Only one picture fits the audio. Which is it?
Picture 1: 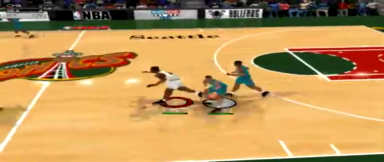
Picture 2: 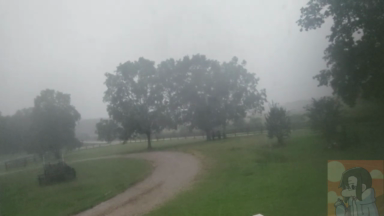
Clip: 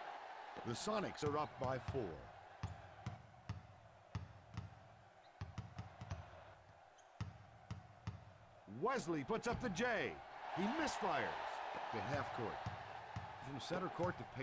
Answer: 1